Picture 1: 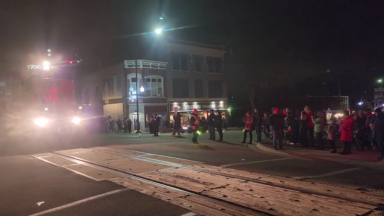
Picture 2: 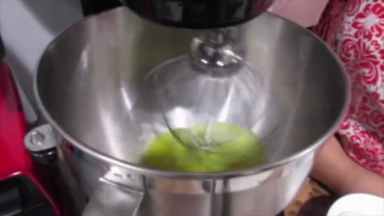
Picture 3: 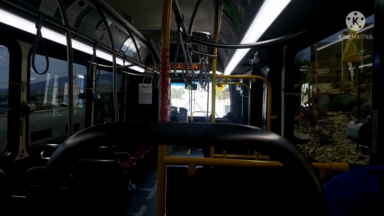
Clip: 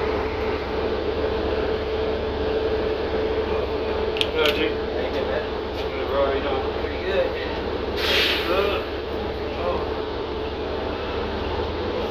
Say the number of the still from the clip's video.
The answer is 3